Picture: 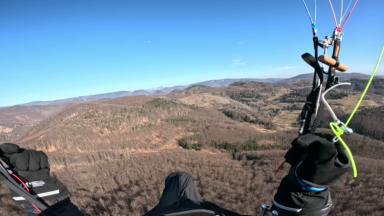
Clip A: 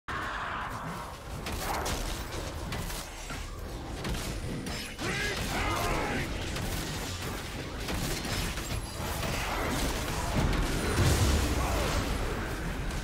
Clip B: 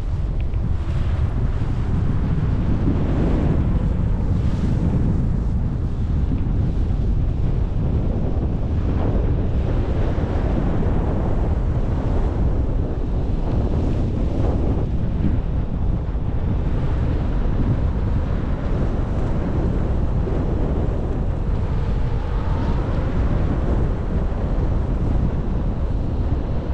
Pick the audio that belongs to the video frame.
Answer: B